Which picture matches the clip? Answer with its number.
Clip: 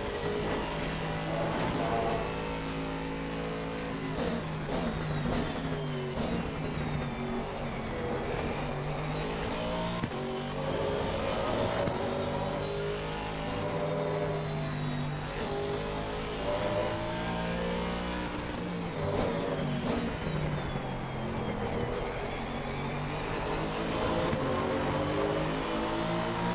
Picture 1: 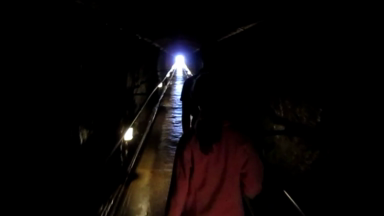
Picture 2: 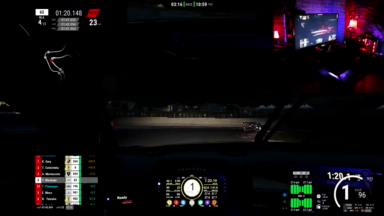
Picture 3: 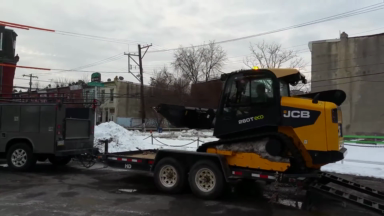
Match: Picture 2